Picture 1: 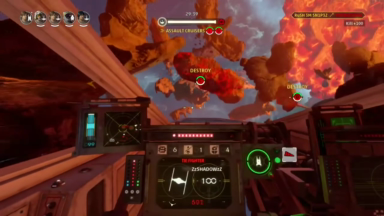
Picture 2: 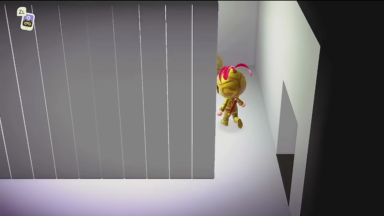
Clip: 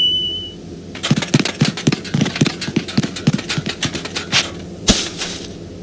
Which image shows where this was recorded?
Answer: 2